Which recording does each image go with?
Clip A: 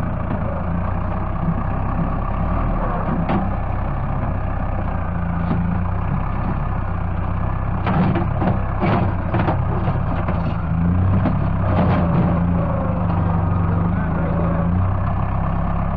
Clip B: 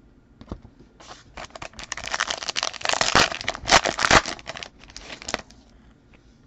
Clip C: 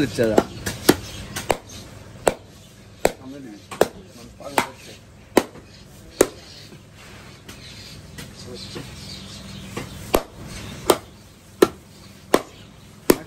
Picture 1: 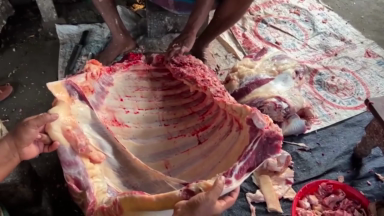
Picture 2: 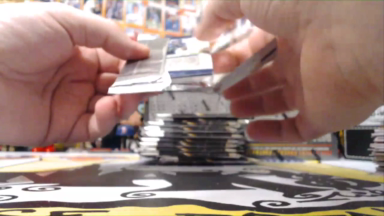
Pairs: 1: C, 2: B